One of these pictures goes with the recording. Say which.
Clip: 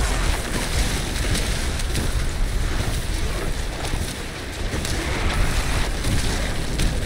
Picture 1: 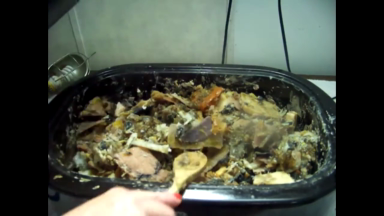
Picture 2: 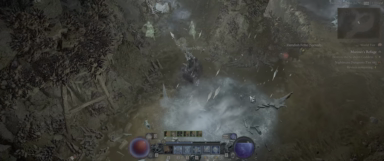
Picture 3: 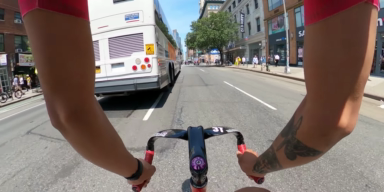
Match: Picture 2